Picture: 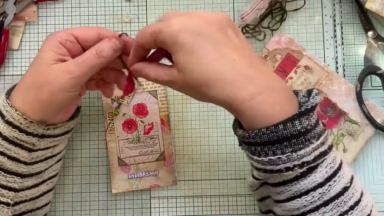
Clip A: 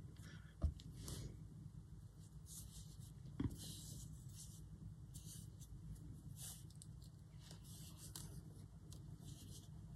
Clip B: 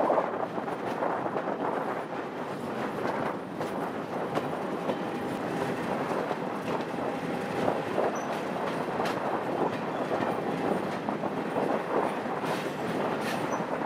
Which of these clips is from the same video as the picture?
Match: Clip A